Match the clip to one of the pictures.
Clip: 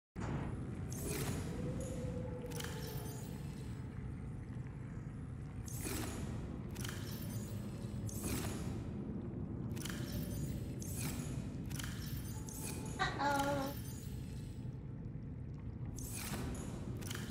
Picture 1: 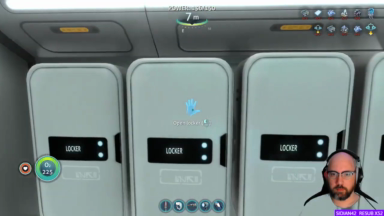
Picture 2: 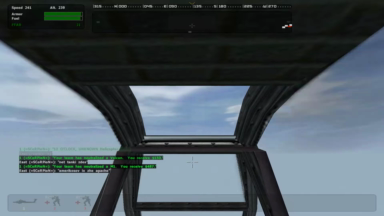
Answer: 1